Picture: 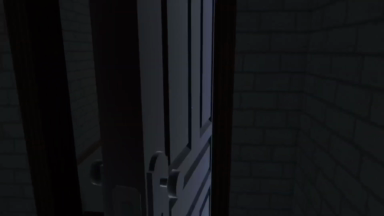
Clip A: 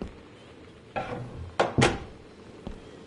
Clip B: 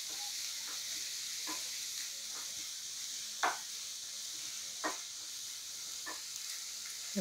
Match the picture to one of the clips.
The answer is A